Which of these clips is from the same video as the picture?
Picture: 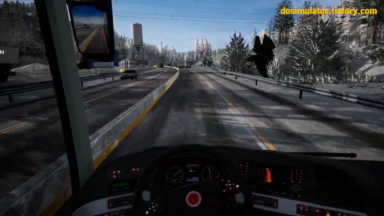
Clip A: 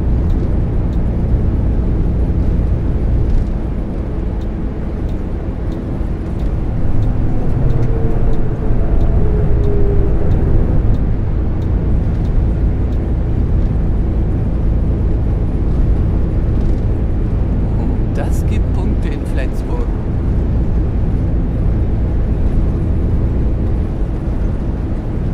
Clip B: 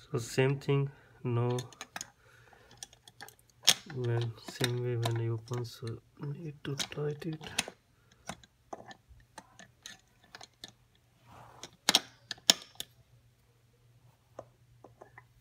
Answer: A